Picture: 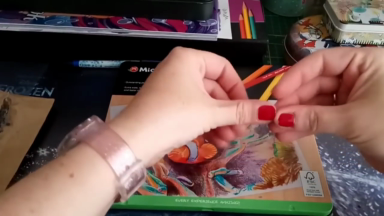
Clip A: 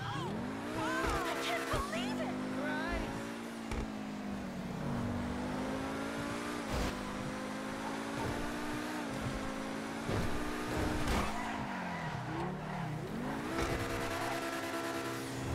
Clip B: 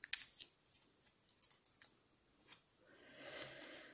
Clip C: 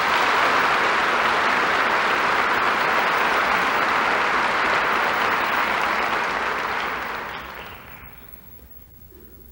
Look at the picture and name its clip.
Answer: B